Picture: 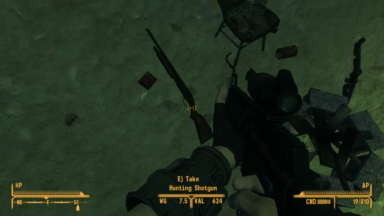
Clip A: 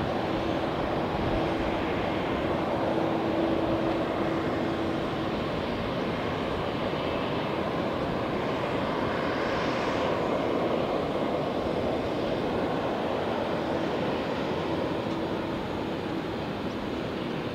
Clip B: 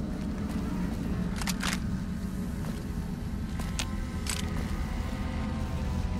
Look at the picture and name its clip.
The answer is B